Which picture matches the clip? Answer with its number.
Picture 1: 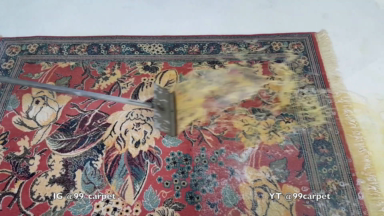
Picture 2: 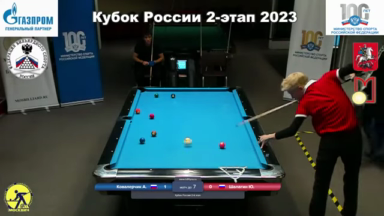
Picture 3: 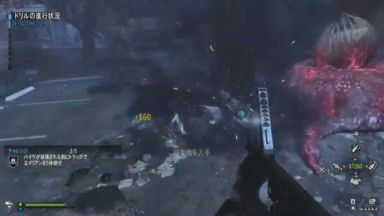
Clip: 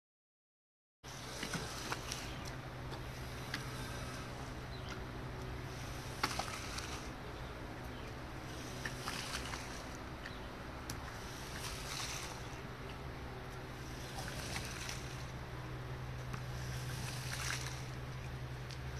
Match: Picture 1